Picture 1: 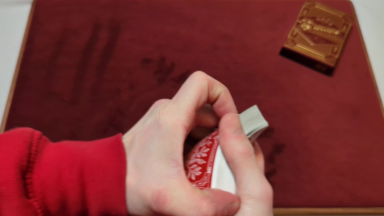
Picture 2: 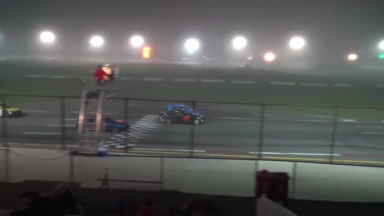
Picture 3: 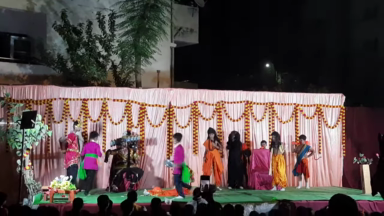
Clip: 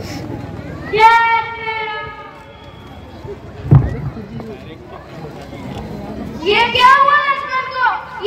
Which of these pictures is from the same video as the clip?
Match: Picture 3